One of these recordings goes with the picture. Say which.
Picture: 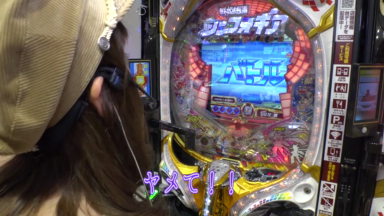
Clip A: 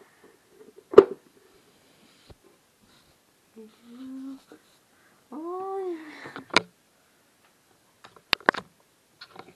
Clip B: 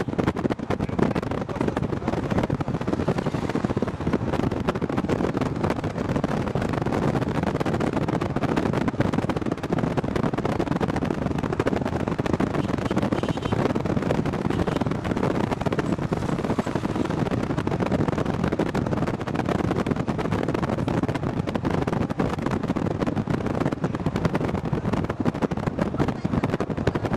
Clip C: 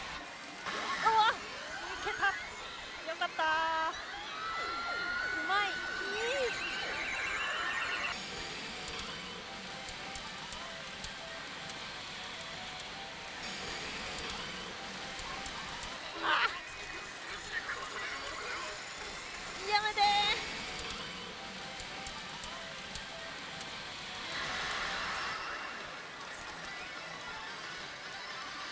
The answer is C